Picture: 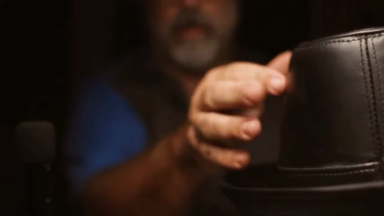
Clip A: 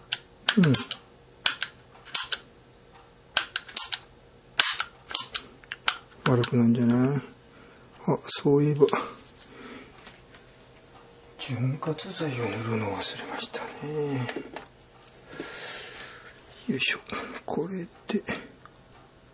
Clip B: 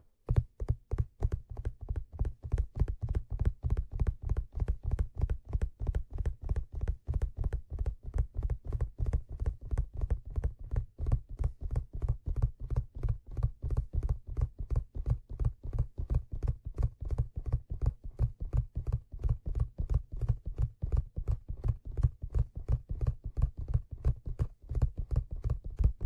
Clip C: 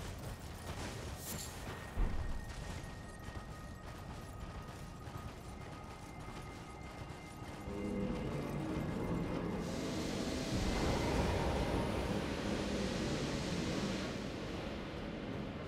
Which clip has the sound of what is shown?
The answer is B